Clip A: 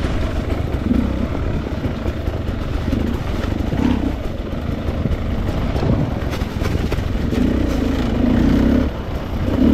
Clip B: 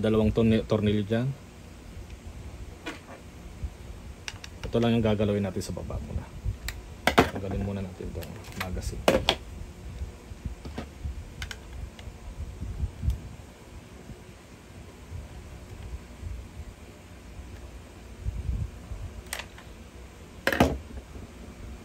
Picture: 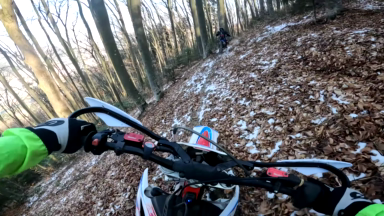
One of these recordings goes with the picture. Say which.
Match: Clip A